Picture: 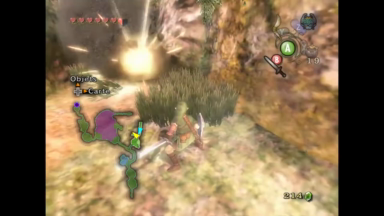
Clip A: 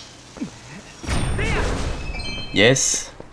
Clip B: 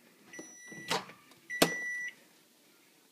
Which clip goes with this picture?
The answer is A